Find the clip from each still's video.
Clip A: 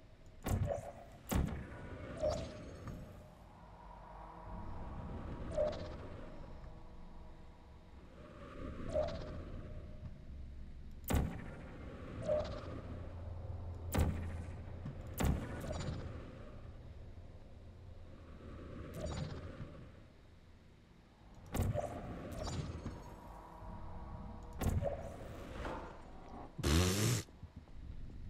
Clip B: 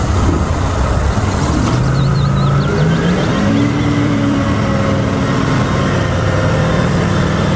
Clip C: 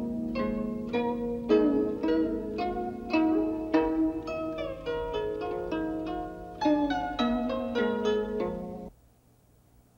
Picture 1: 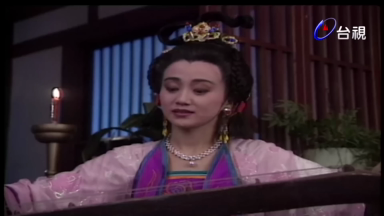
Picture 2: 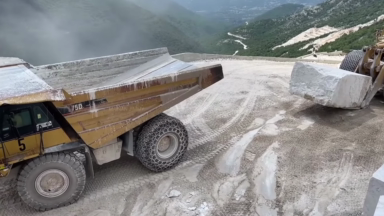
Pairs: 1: C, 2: B